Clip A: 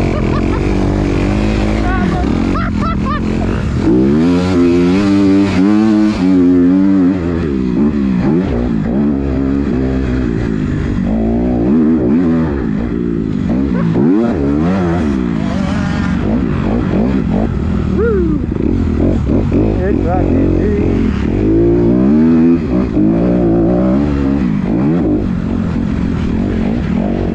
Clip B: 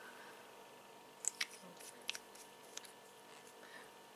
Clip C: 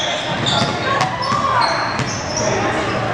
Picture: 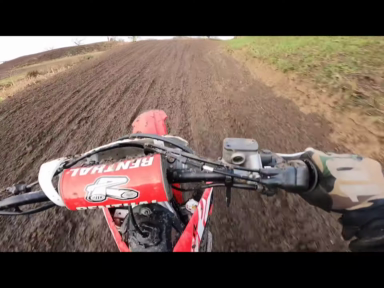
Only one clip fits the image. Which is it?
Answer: A